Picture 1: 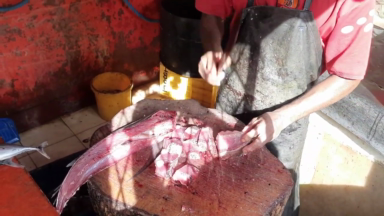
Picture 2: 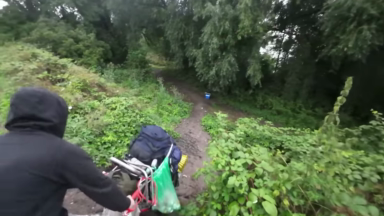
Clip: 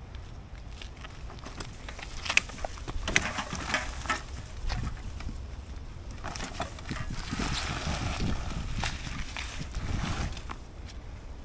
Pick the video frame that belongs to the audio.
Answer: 2